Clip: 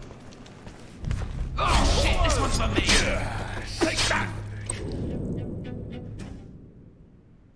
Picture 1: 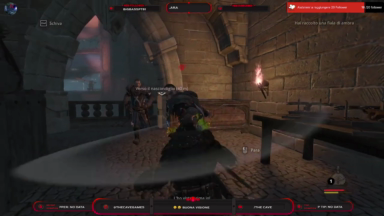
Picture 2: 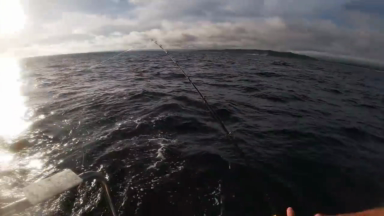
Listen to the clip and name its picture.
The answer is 1